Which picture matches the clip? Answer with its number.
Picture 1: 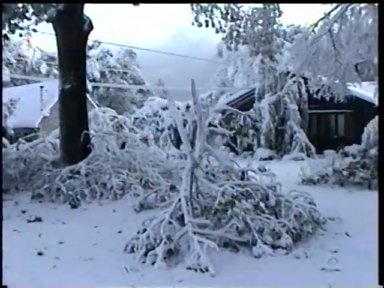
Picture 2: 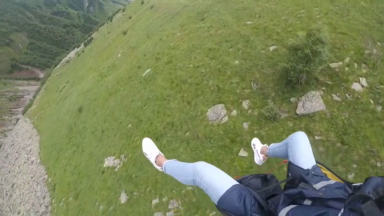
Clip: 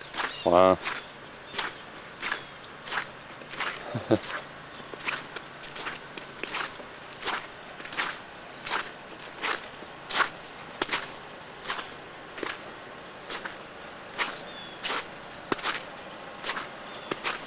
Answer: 1